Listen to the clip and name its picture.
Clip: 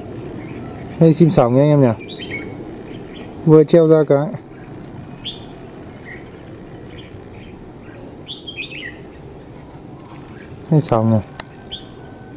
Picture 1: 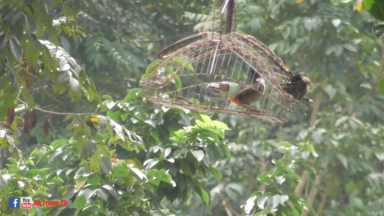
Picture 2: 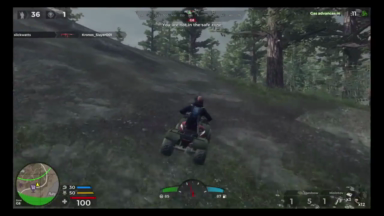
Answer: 1